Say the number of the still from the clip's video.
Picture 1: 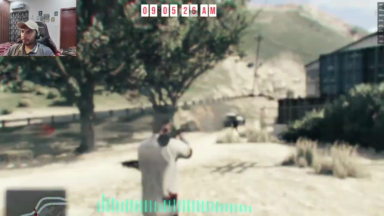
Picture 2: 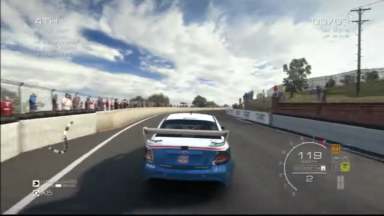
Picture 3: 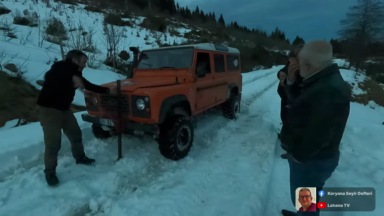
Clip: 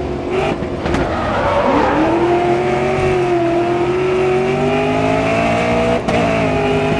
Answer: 2